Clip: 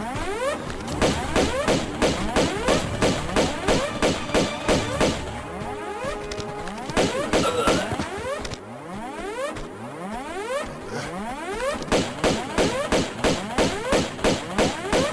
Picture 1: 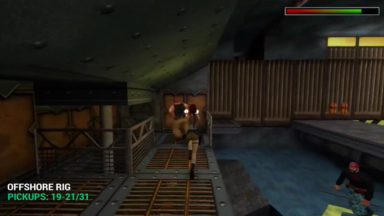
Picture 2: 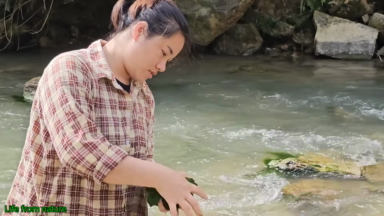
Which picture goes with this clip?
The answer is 1